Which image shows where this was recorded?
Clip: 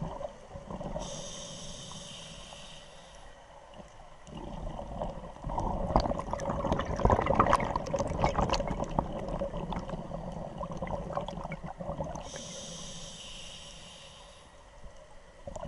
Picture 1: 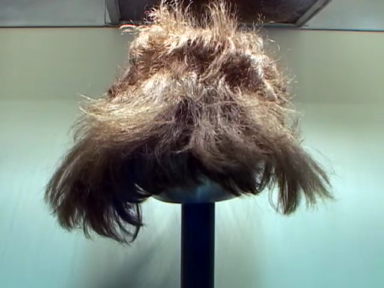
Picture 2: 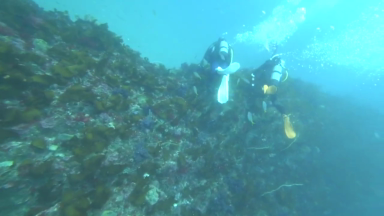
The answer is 2